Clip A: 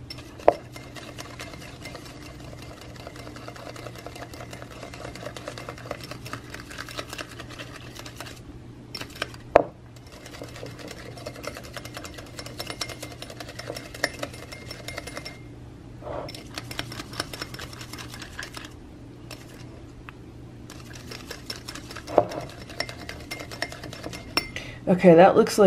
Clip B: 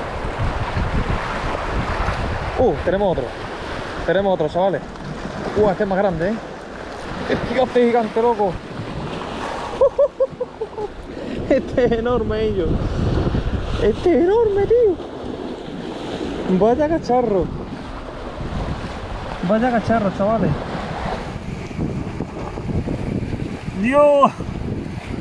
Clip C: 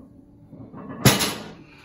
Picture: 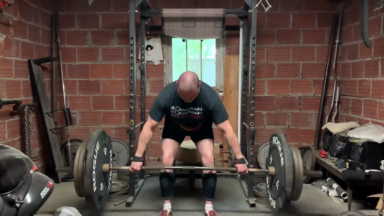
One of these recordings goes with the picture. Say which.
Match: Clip C